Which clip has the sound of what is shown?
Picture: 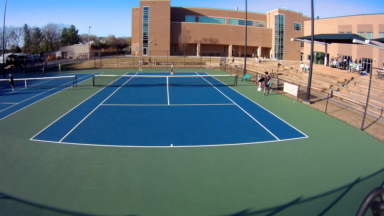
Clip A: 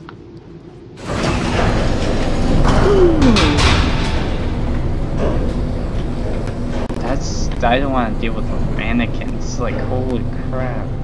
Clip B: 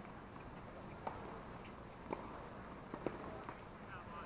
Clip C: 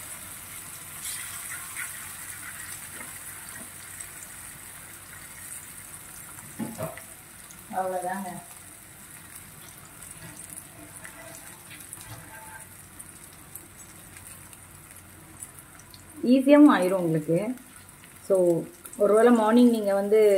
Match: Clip B